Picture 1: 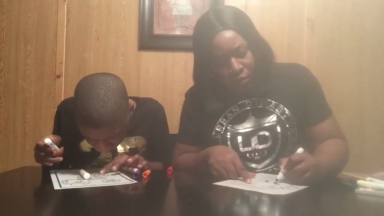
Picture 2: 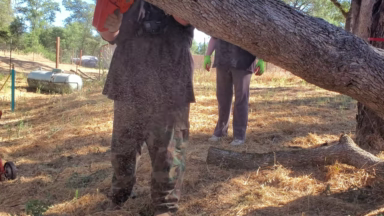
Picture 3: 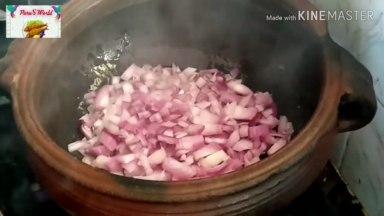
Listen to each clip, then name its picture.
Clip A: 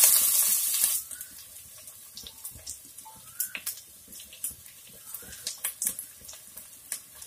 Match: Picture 3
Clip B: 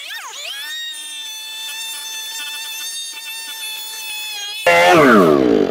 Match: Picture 2